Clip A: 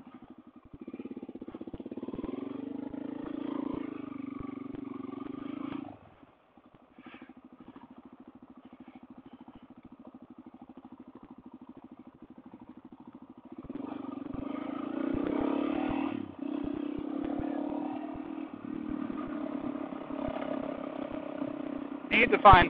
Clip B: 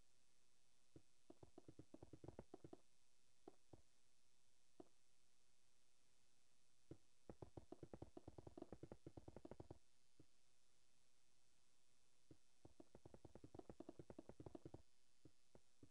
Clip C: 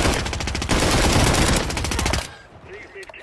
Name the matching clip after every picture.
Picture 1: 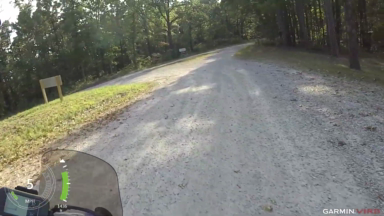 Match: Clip A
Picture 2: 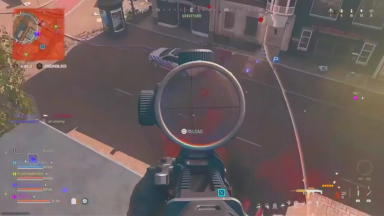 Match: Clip C